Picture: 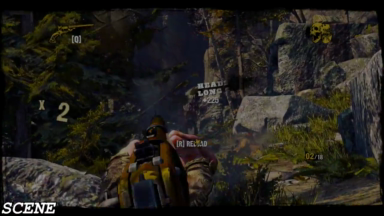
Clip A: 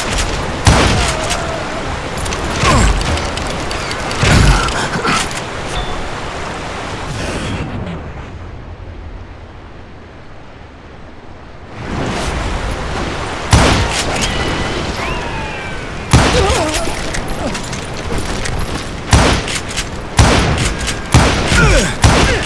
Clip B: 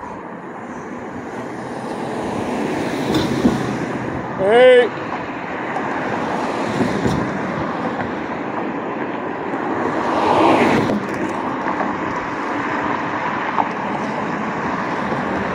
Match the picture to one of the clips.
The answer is A